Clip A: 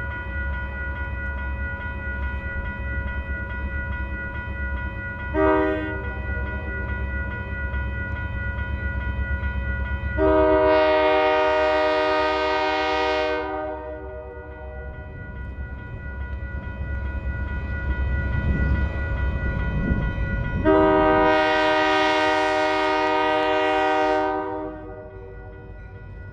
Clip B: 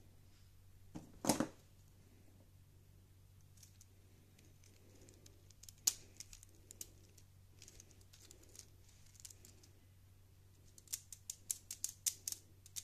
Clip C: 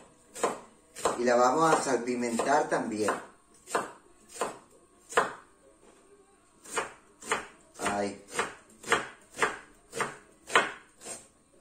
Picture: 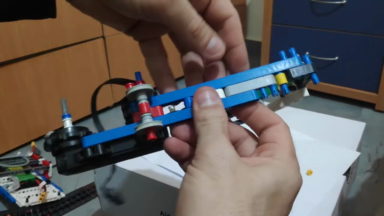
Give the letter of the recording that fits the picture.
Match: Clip B